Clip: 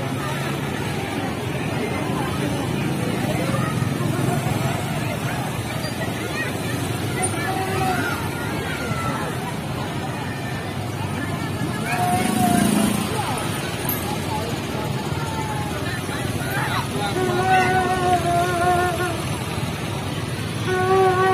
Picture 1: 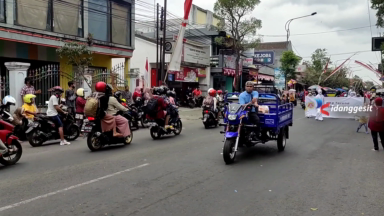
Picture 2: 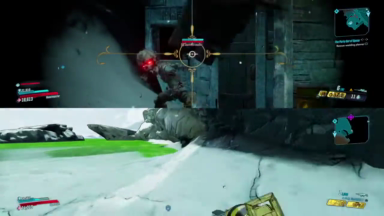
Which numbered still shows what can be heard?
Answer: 1